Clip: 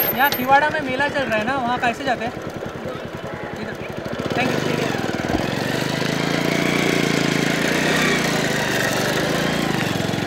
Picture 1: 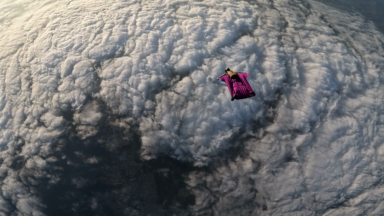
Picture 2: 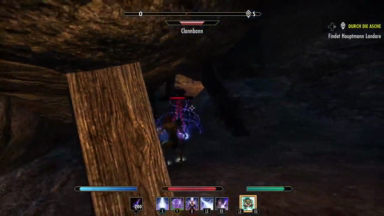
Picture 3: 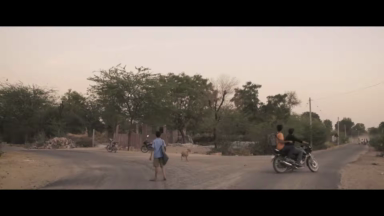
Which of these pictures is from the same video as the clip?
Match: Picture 3